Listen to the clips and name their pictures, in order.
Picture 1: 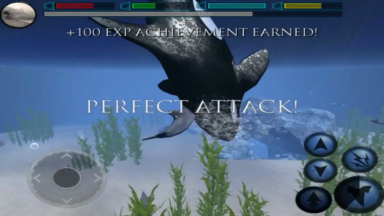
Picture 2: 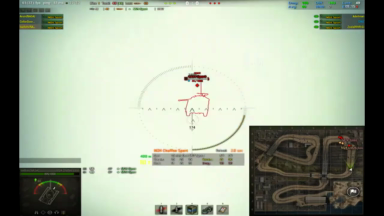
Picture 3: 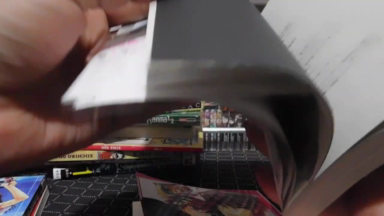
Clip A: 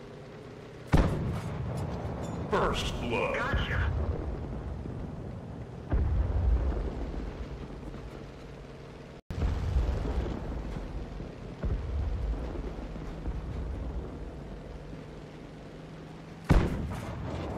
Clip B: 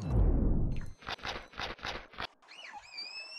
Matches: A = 2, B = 1